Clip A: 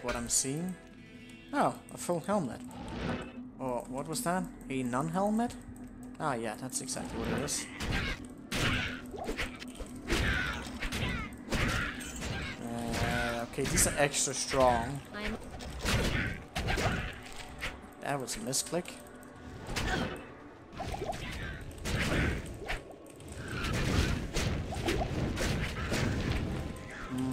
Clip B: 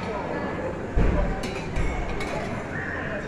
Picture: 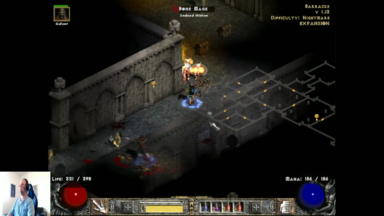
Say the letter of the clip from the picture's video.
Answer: A